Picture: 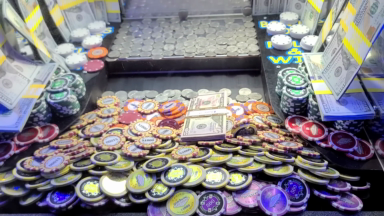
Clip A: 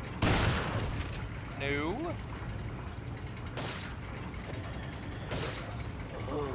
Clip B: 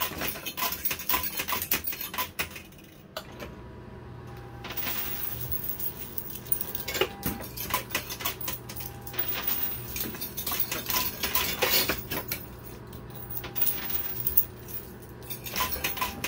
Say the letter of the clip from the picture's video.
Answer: B